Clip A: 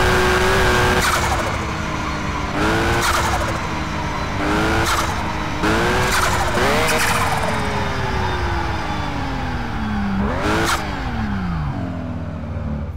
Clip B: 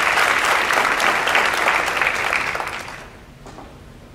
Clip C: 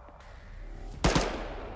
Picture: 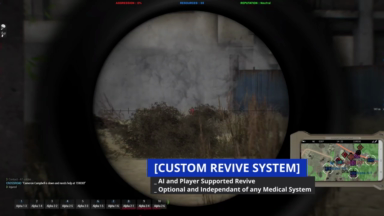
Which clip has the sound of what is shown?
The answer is C